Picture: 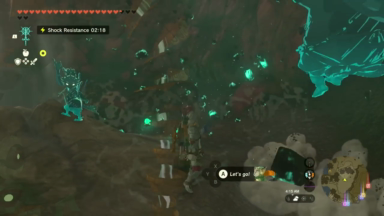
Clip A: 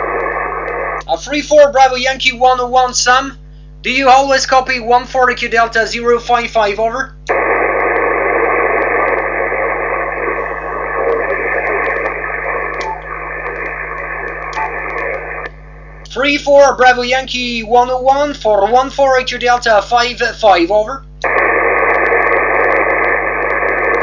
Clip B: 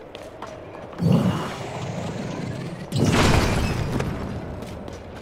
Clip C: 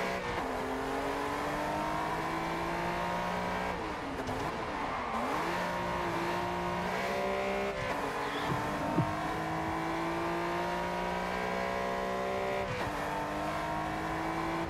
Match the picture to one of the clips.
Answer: B